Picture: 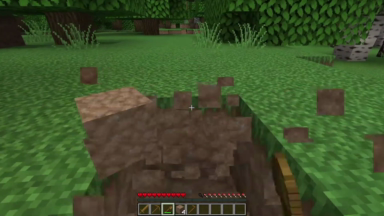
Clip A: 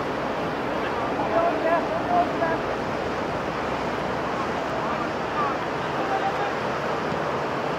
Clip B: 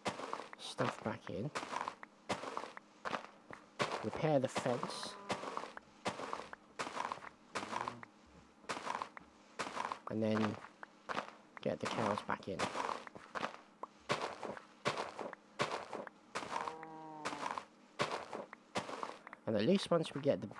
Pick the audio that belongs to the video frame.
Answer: B